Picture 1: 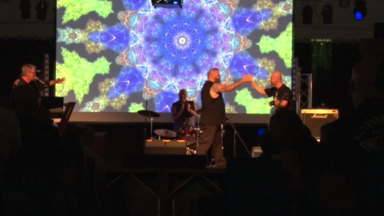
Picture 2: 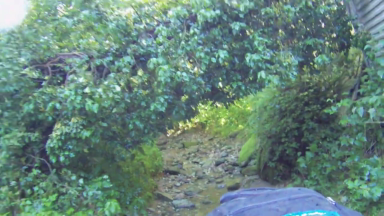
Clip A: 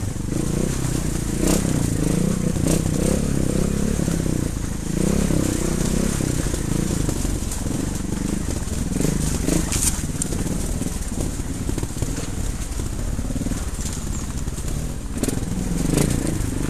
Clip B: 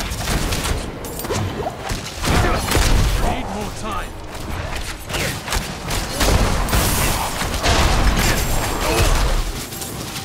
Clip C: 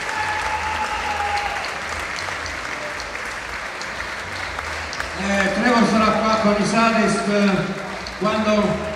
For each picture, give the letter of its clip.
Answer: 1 C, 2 A